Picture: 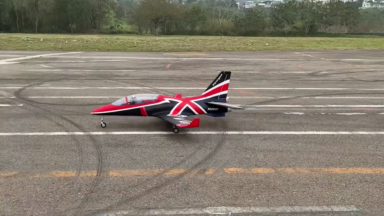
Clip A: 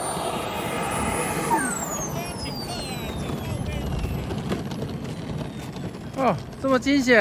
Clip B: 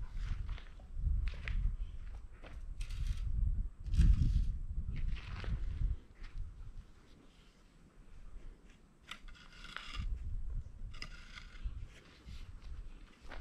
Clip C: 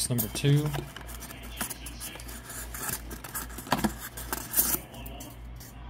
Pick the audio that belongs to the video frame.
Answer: A